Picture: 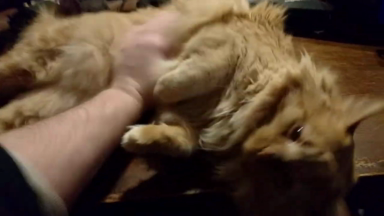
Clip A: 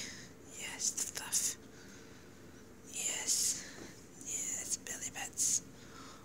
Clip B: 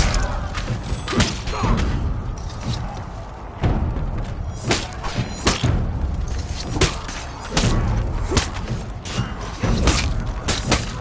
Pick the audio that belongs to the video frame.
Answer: A